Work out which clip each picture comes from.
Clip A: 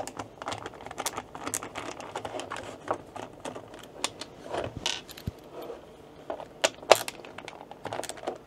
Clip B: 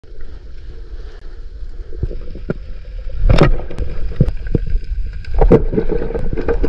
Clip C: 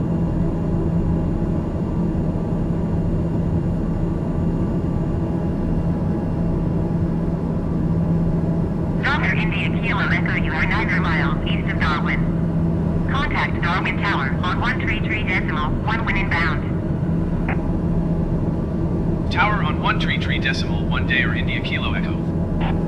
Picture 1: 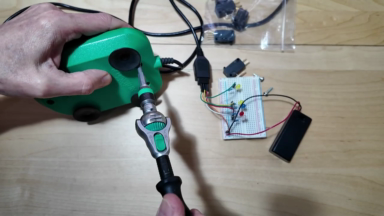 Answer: A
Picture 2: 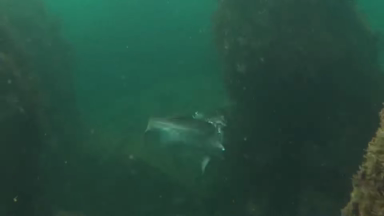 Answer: B